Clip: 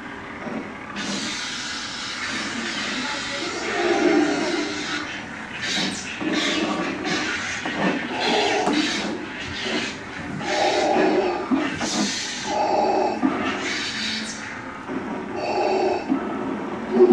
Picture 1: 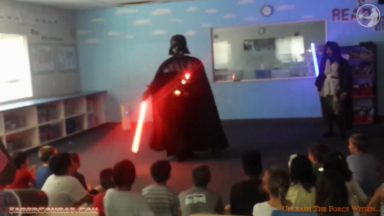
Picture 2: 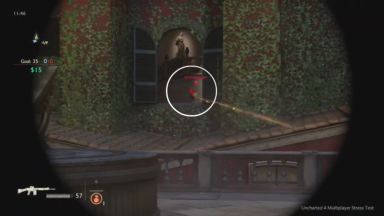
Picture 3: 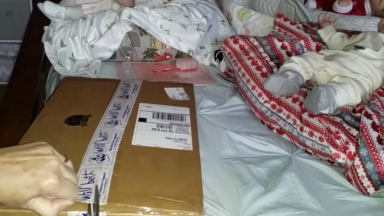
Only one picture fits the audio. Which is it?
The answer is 1